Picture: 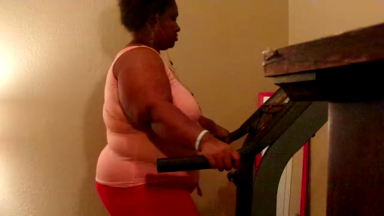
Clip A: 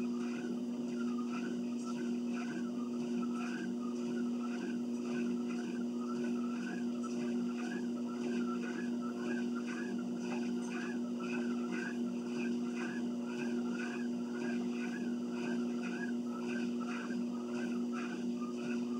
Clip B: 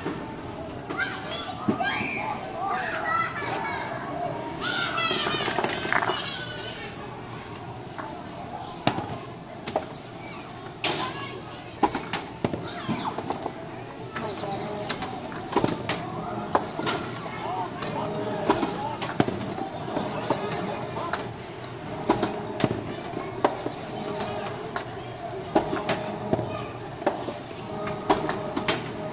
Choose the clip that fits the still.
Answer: A